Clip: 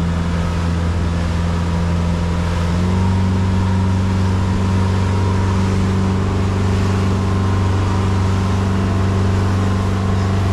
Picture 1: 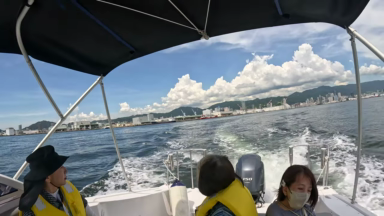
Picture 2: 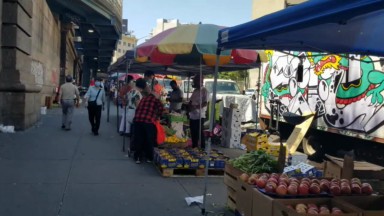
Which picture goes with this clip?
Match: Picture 1